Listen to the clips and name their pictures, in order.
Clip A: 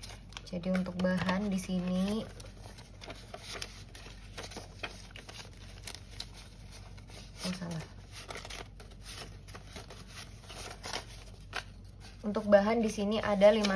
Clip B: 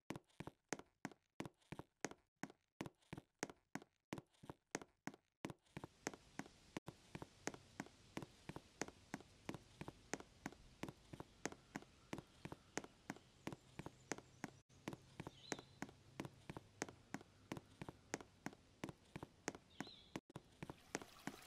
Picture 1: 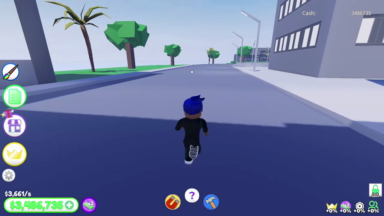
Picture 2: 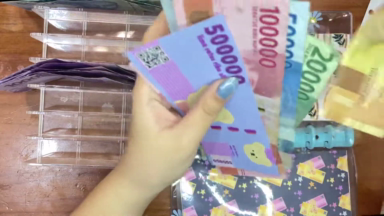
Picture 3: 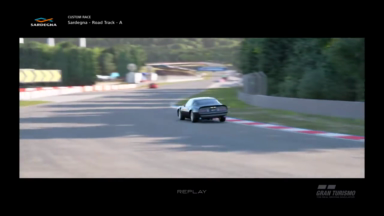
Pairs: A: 2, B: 1